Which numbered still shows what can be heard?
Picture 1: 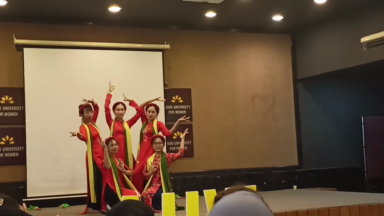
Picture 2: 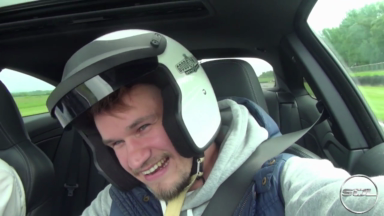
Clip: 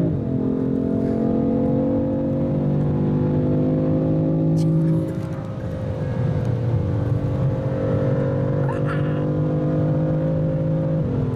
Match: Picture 2